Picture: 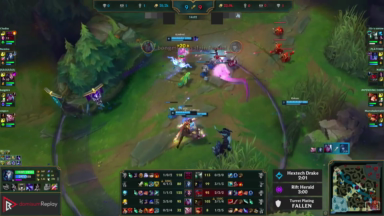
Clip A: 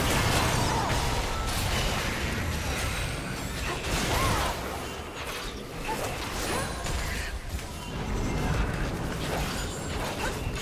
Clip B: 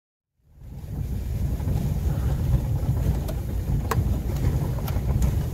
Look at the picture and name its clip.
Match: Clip A